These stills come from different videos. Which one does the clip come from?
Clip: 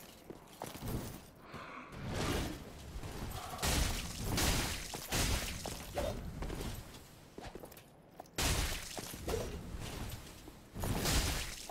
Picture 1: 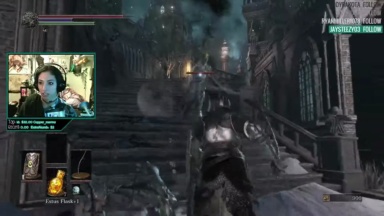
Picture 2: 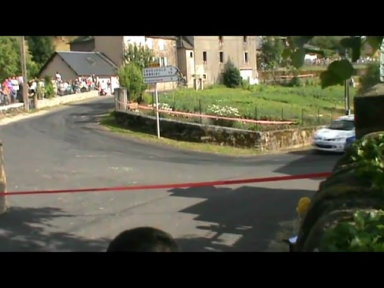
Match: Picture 1